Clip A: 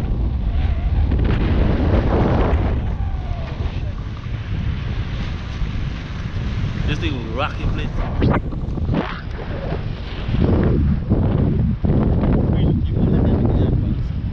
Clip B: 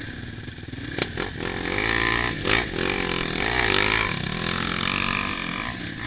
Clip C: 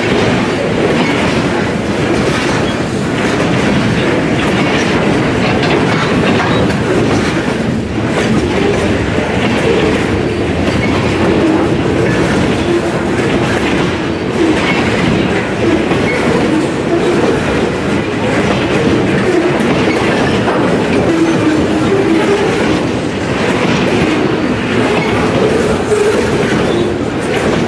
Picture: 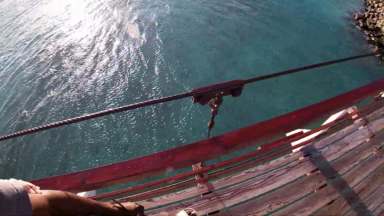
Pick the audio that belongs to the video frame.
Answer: A